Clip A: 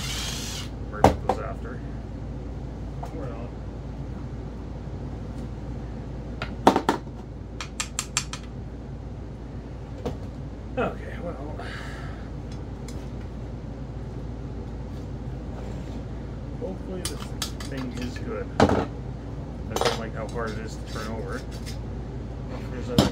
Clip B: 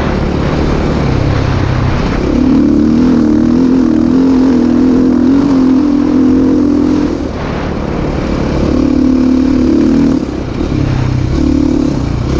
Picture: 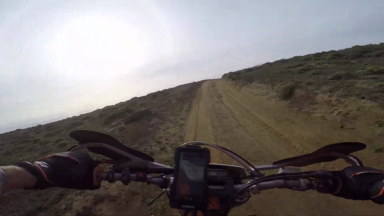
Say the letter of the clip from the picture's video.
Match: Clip B